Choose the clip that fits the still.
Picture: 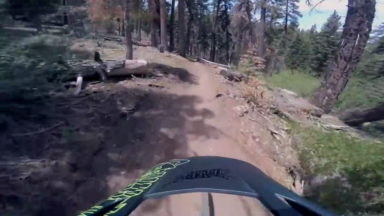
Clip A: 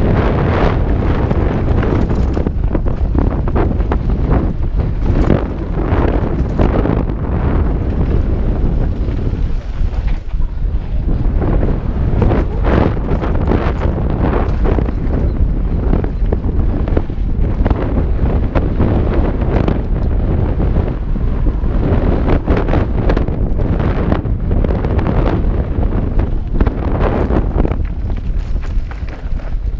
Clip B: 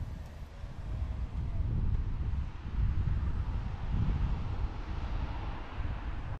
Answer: A